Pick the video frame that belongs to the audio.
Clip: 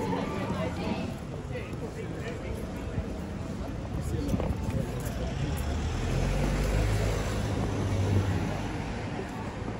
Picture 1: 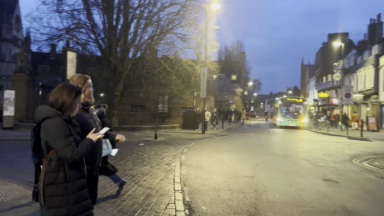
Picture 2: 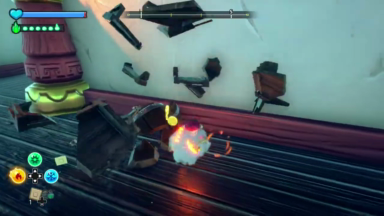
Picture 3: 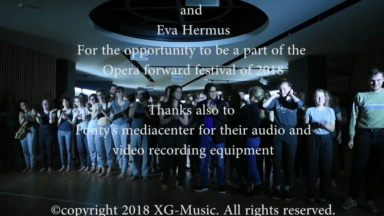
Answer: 1